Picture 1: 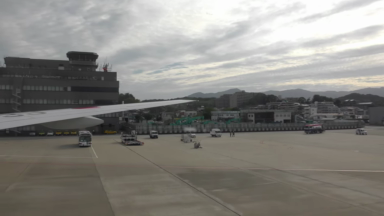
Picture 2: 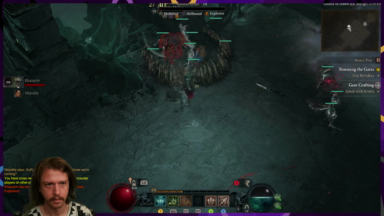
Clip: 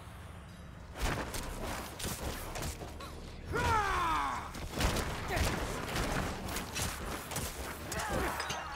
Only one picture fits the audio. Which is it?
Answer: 2